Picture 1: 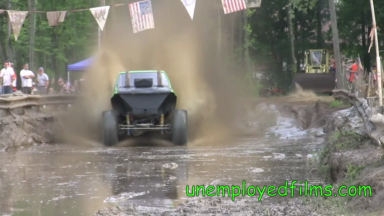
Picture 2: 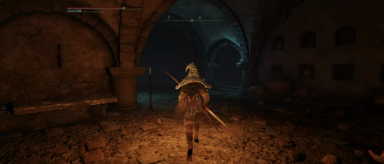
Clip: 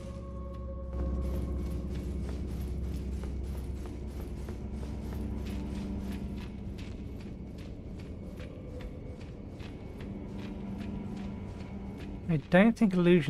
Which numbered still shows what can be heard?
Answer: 2